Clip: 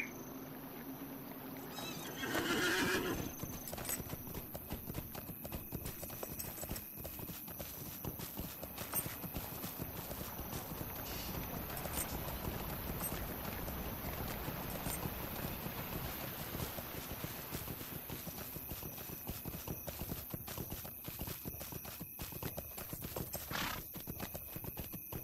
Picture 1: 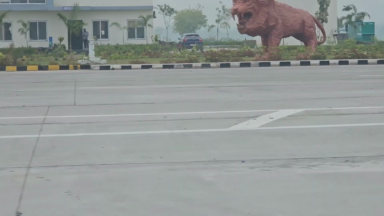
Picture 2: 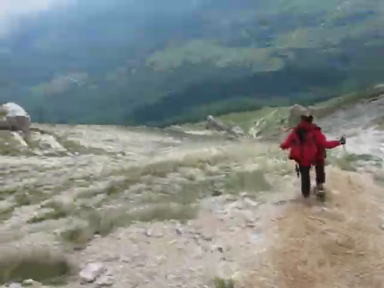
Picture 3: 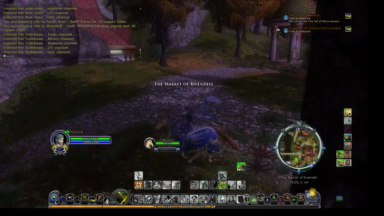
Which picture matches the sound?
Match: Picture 3